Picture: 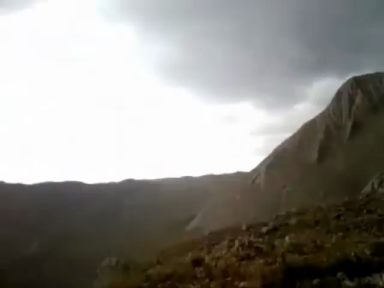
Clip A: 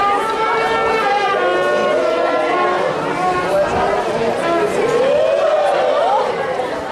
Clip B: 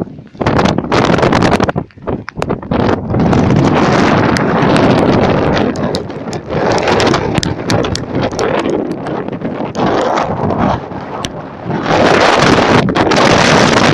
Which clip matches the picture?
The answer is B